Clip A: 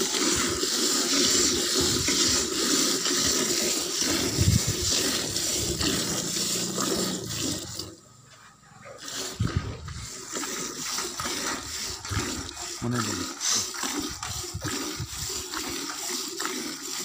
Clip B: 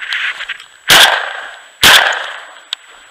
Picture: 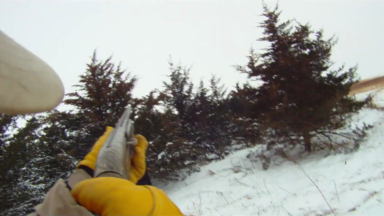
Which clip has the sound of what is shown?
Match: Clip B